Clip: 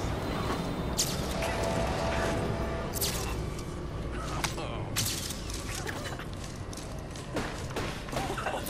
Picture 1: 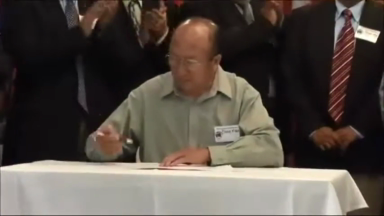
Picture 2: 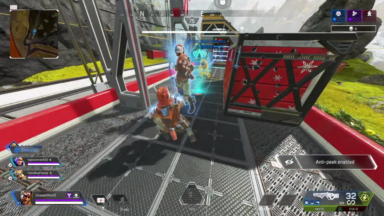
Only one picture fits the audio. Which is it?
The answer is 2